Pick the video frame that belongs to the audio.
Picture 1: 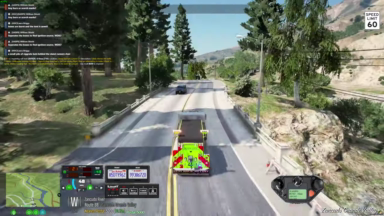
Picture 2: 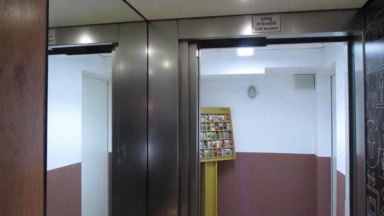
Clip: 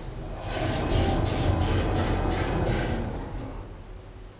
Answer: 2